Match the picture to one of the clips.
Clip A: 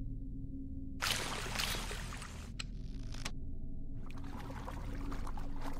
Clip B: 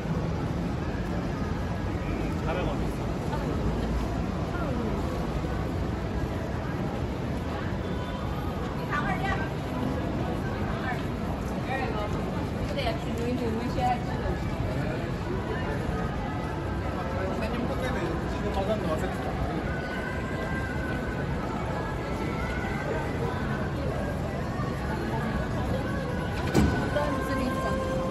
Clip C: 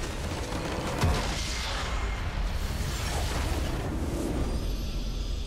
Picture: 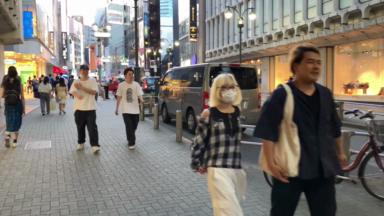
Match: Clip B